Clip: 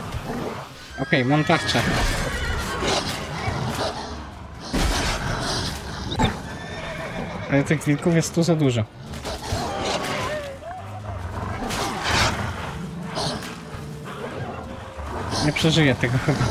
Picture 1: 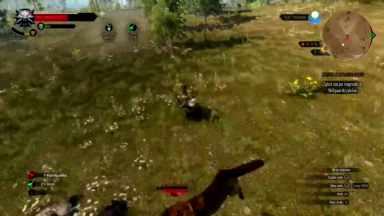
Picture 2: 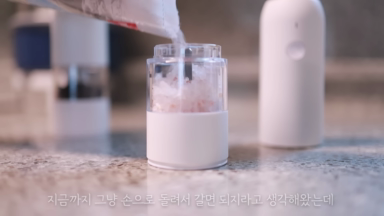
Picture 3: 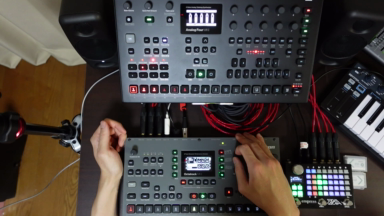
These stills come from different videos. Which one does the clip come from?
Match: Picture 1